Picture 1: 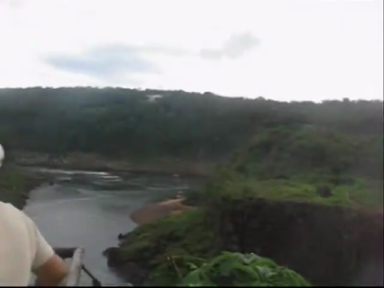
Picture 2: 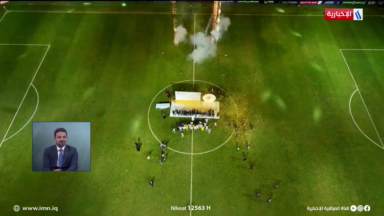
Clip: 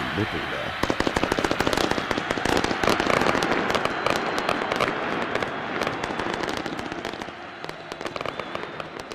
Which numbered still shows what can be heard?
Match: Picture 2